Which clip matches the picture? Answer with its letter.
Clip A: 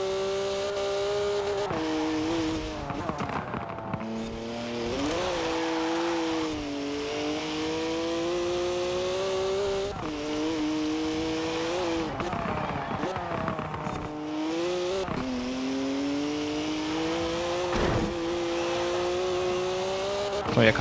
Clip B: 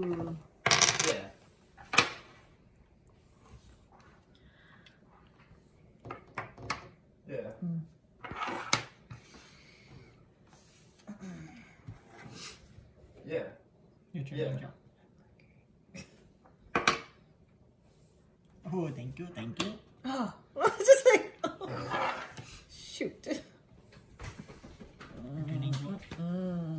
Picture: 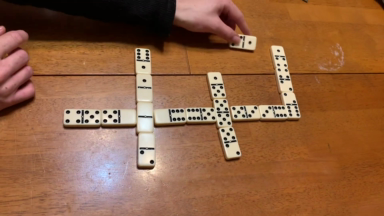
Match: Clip B